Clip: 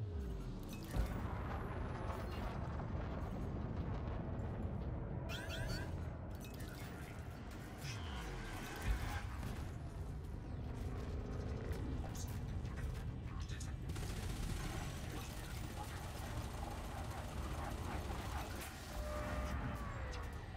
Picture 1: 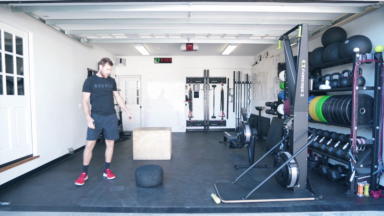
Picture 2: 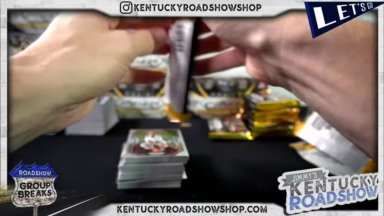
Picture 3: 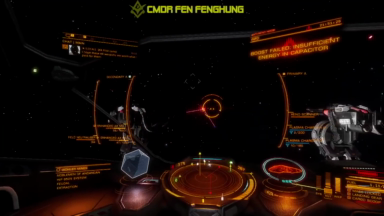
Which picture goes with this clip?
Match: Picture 3